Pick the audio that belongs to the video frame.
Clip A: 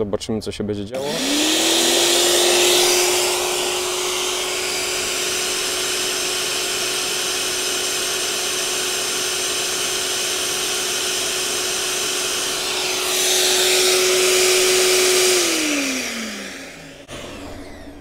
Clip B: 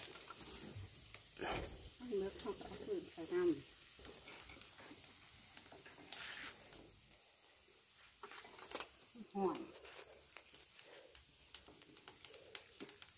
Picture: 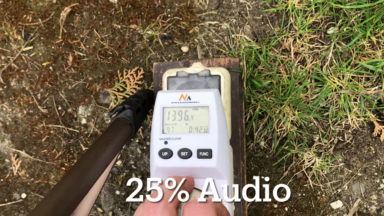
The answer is A